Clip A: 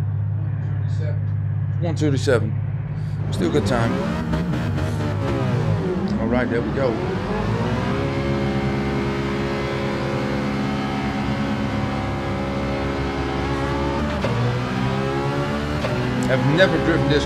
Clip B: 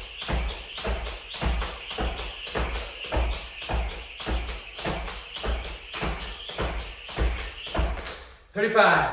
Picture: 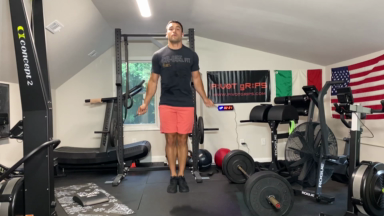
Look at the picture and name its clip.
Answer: B